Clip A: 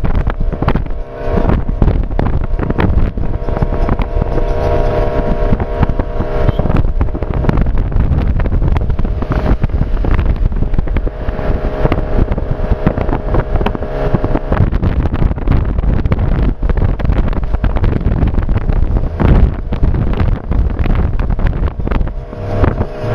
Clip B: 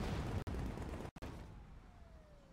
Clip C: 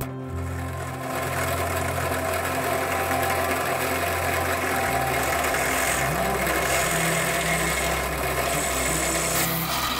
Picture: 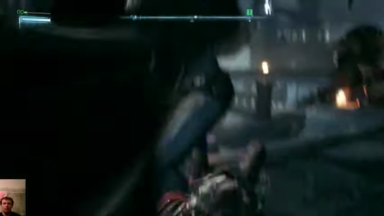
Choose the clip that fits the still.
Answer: B